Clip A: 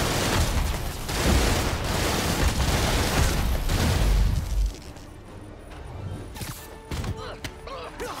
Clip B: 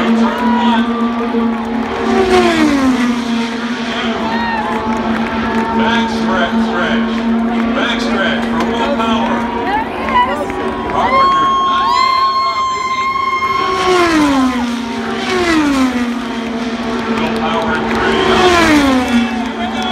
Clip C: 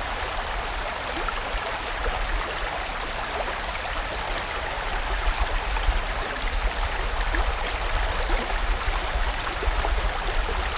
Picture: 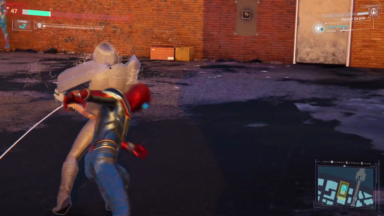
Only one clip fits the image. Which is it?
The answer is A